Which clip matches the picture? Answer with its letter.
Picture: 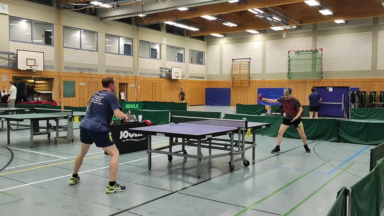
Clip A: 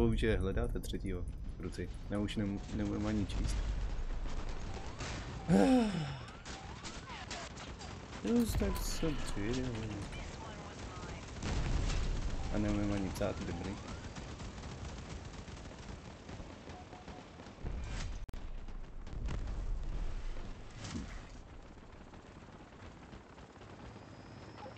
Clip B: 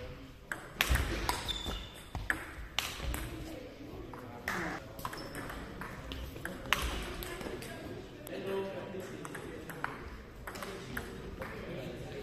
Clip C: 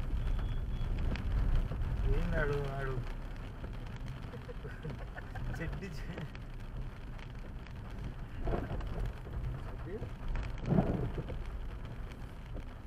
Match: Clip B